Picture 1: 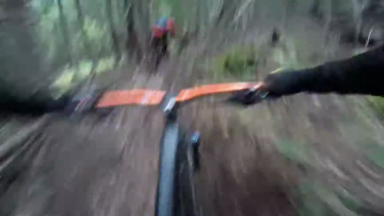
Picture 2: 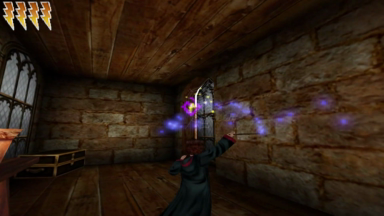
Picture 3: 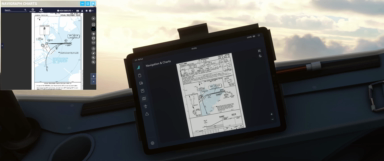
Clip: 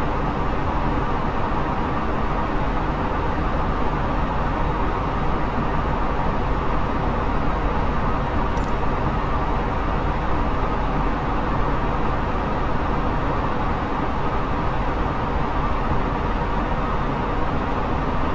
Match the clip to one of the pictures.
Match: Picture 3